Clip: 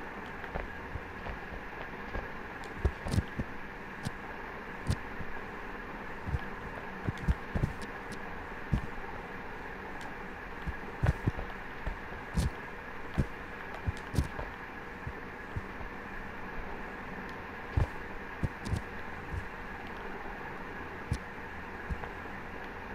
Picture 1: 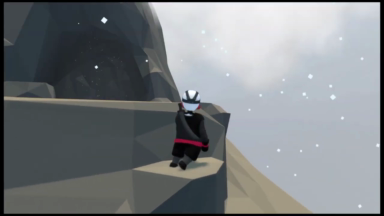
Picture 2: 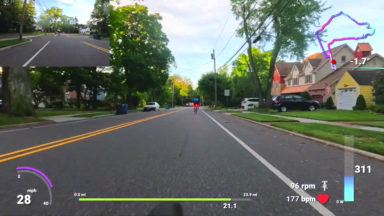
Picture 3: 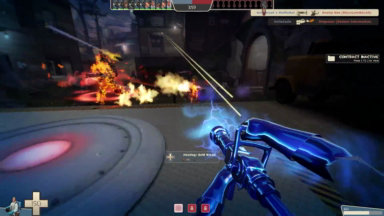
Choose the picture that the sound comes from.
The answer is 1